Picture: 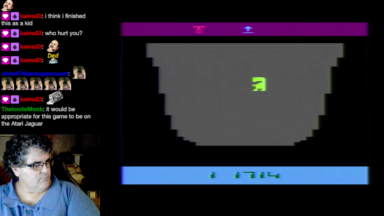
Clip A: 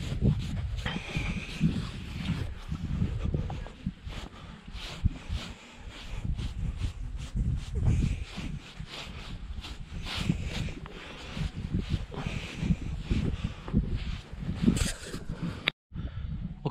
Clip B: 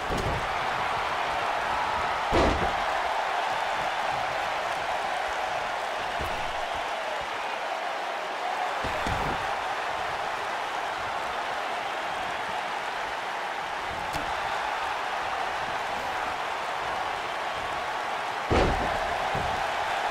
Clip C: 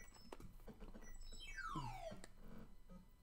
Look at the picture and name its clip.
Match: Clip C